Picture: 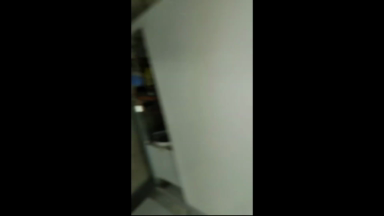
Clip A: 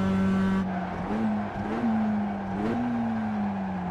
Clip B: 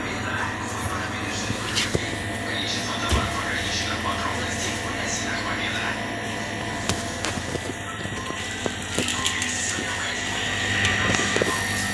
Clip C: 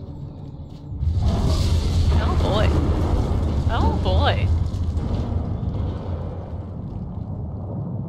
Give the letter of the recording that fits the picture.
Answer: B